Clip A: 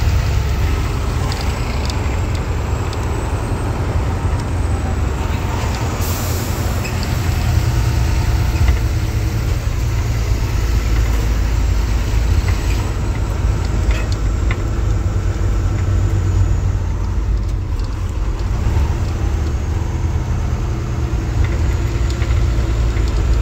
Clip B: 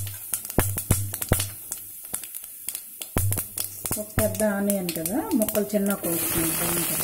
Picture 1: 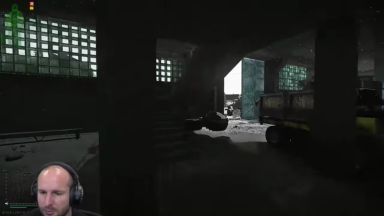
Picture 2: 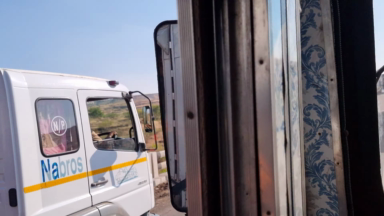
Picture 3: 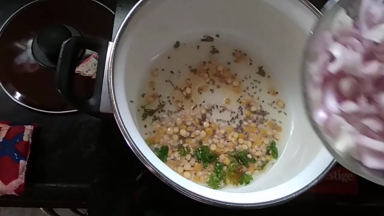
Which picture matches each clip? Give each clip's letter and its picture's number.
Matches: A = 2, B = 3